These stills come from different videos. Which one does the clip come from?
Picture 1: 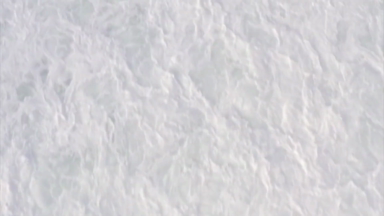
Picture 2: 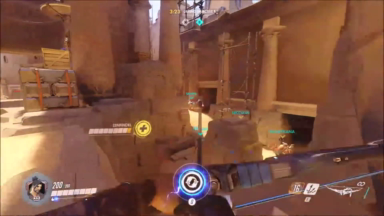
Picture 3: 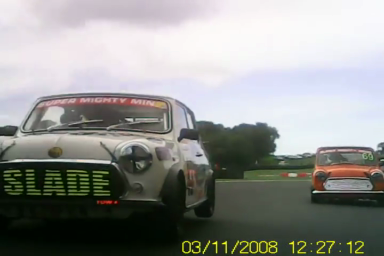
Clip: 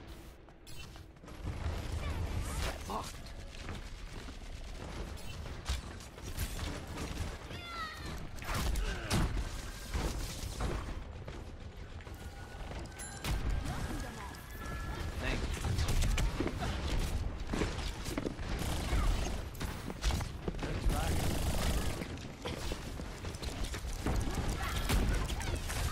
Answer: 2